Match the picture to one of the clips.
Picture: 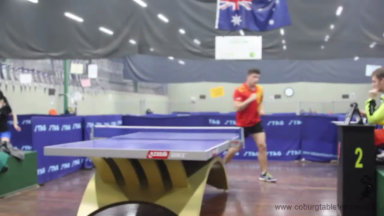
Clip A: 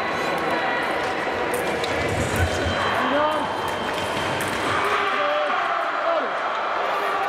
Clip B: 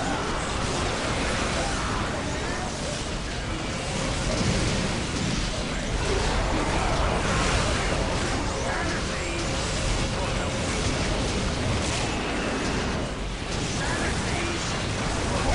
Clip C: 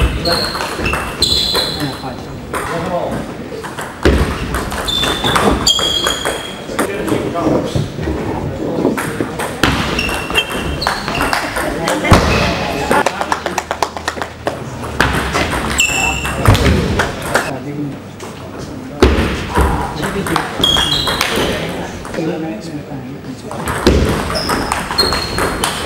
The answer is C